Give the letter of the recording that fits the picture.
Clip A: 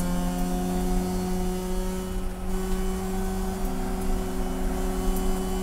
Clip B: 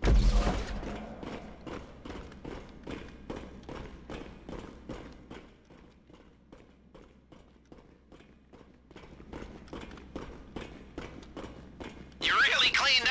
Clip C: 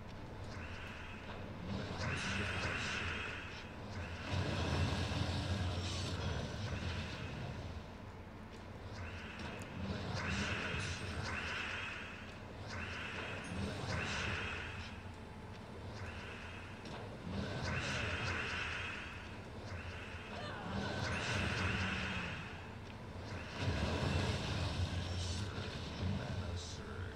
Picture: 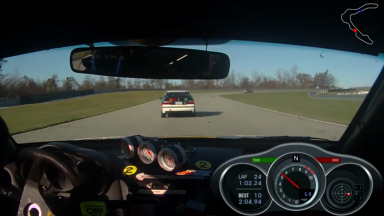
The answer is A